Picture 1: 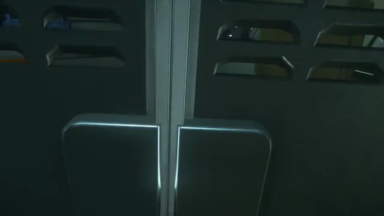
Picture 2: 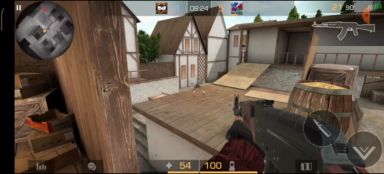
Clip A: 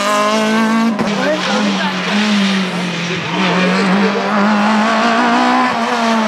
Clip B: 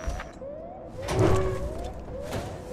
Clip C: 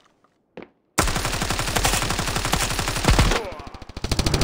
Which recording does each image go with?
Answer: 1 B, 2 C